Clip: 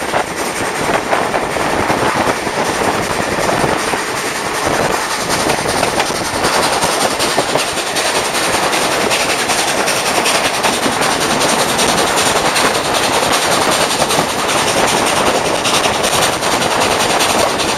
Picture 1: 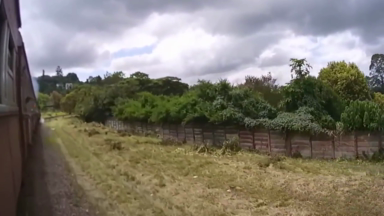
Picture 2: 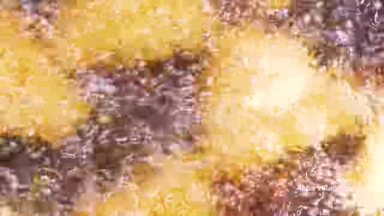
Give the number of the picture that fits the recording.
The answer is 1